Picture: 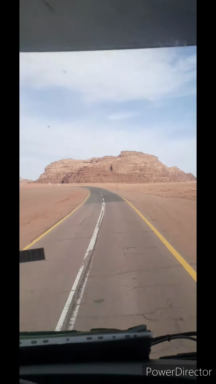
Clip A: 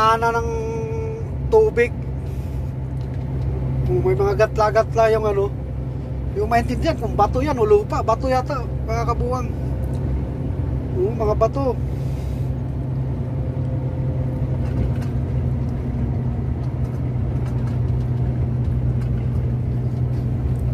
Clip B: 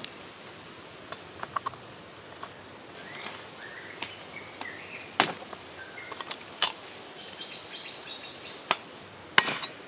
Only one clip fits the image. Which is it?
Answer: A